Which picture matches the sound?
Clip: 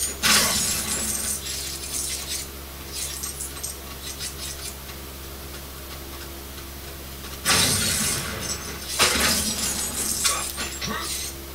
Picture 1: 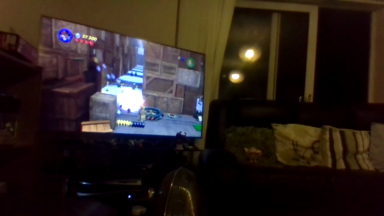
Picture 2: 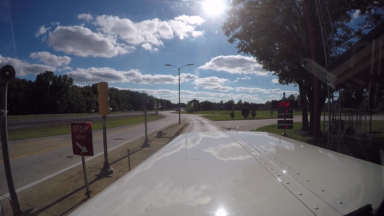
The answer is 1